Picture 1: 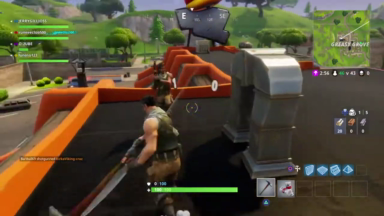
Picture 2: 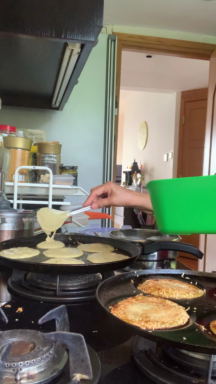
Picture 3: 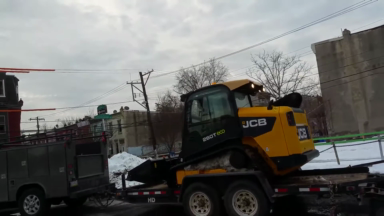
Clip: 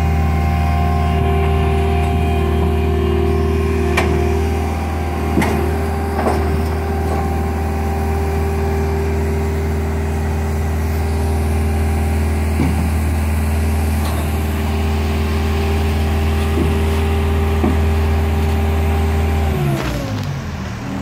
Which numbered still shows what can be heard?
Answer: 3